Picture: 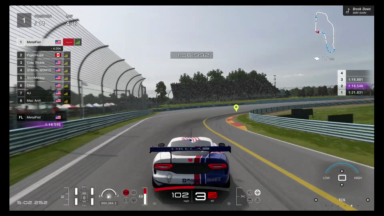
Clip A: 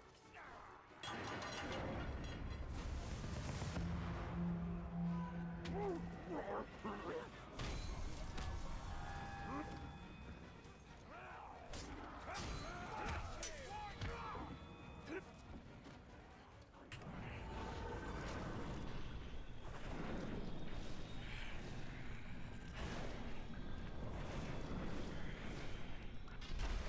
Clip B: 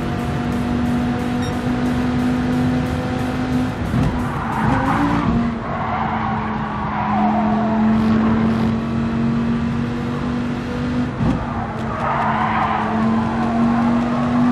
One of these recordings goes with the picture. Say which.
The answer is B